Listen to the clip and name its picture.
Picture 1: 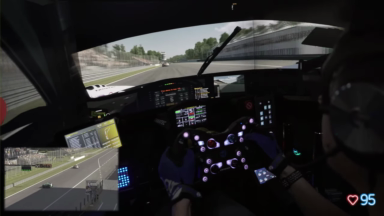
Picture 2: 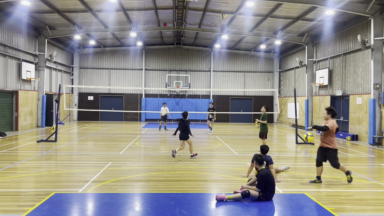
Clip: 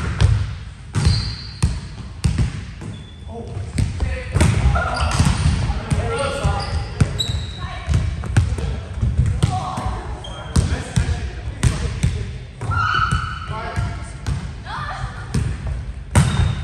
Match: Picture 2